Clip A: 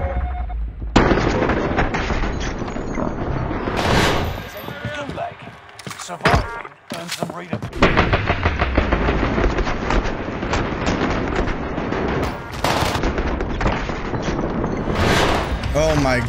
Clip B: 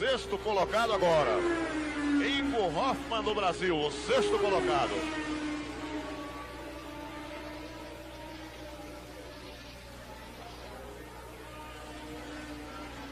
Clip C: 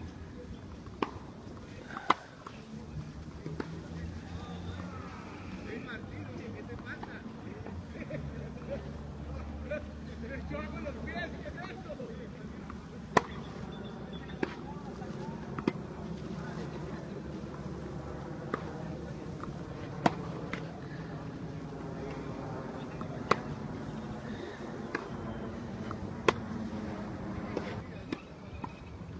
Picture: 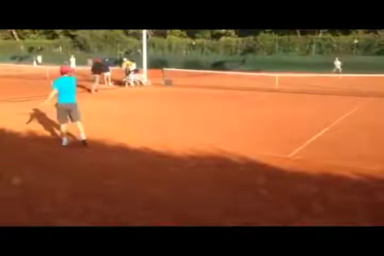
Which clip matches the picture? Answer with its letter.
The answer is C